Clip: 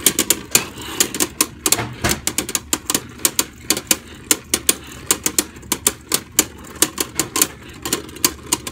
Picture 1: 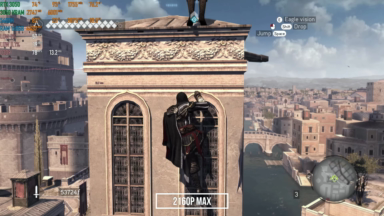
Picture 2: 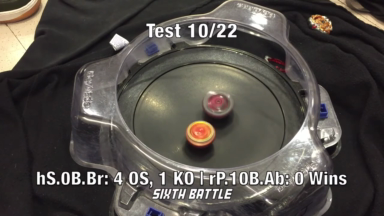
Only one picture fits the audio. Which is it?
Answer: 2